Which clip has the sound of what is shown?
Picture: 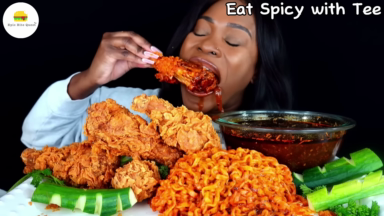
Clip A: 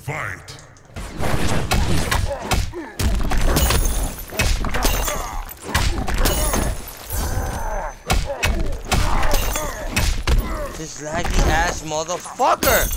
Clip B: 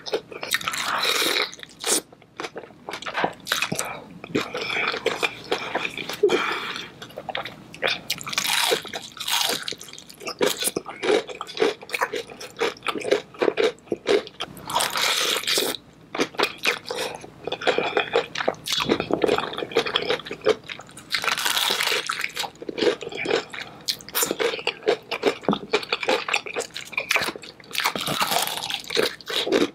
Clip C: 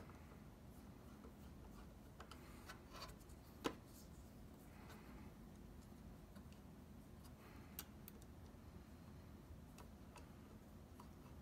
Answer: B